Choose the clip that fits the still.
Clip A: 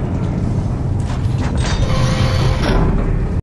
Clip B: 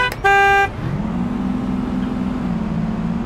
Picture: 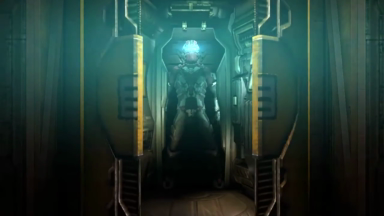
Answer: A